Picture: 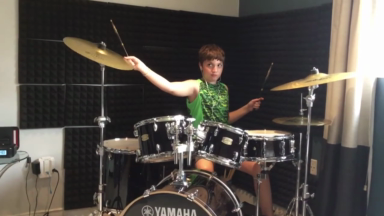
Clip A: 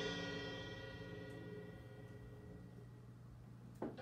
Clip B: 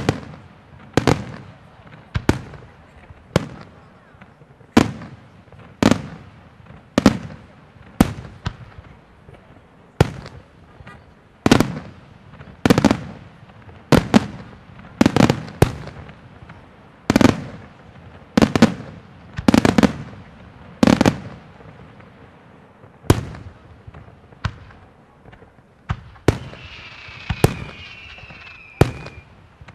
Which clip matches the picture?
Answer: A